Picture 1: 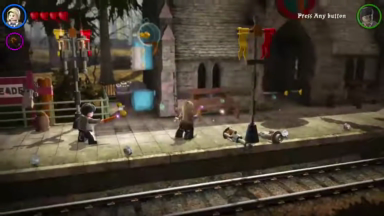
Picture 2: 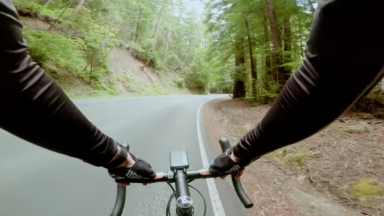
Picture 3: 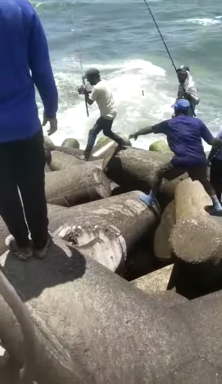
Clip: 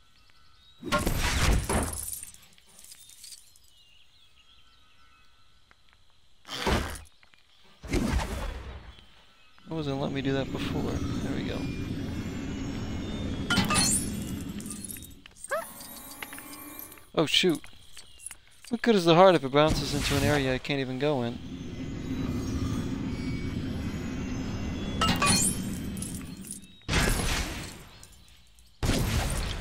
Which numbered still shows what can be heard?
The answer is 1